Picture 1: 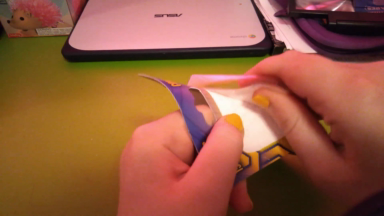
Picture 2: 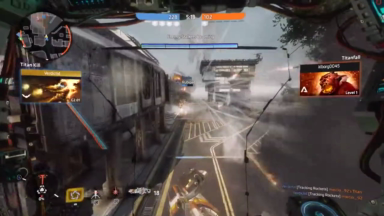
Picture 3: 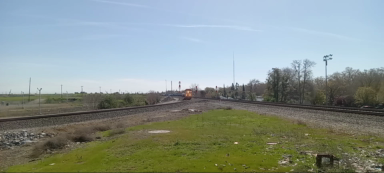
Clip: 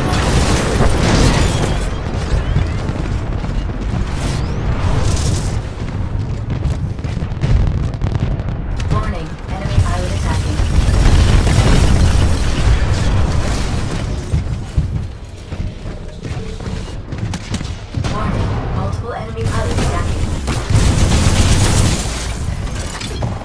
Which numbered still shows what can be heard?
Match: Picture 2